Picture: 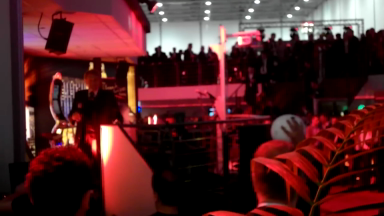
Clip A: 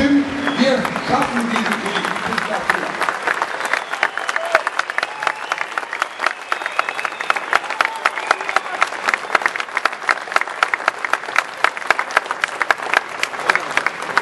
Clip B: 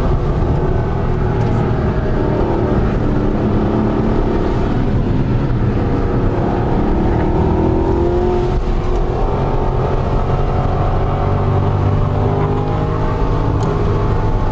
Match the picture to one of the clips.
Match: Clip A